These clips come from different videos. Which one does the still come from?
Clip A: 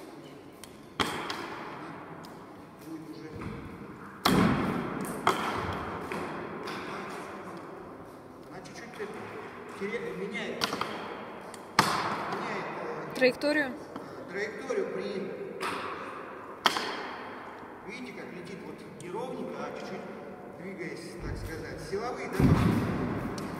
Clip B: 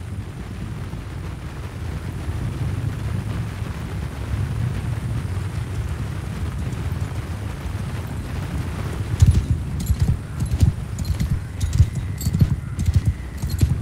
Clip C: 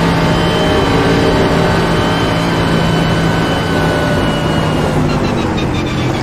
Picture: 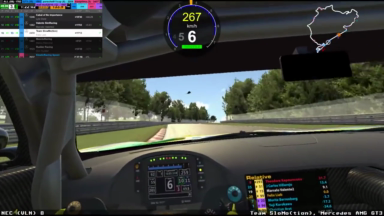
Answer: C